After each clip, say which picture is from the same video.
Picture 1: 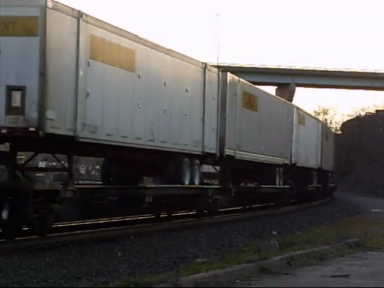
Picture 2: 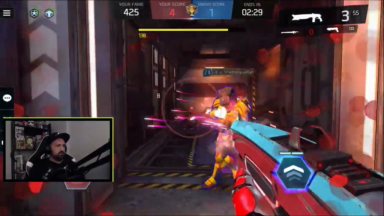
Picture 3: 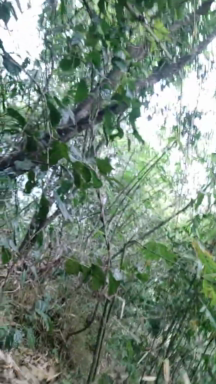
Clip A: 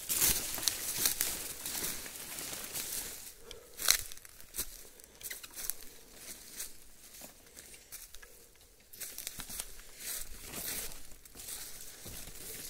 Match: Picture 3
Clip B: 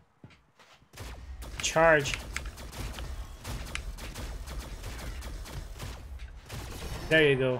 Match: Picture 2